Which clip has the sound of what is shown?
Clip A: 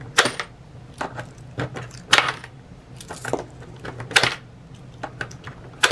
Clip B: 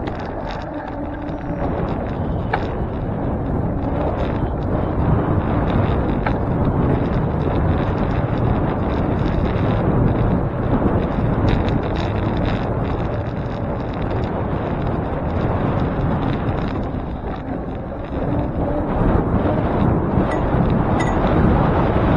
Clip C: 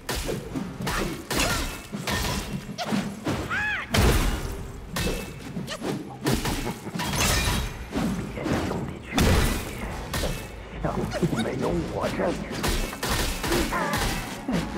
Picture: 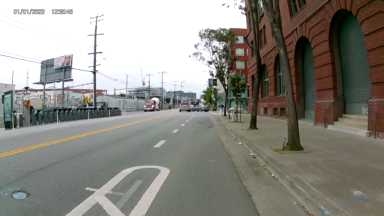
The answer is B